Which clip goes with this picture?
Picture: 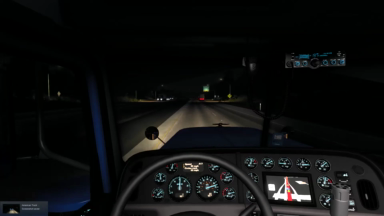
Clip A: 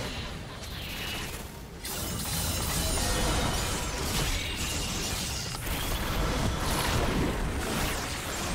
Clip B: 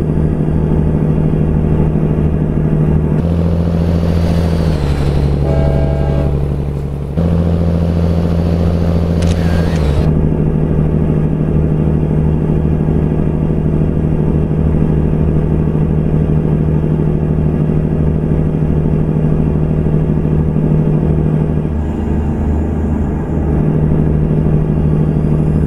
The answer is B